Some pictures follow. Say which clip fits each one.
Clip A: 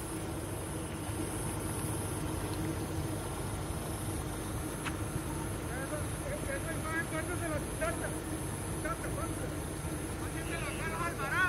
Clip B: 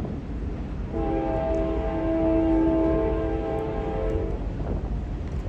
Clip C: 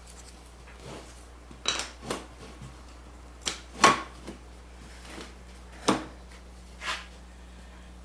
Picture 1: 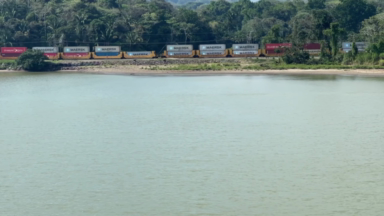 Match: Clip B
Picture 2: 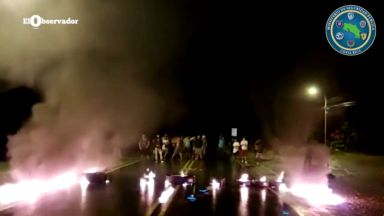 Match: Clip A